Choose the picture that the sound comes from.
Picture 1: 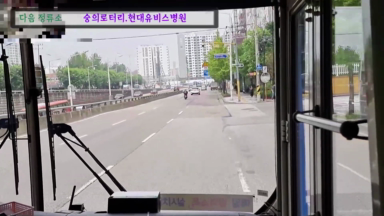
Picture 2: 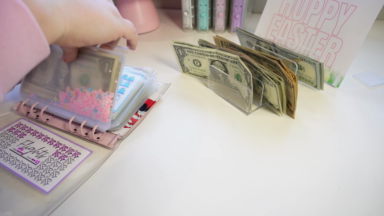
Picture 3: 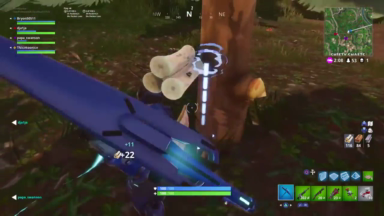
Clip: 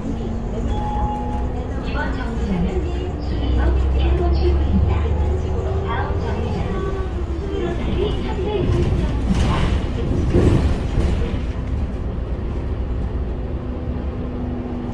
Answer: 1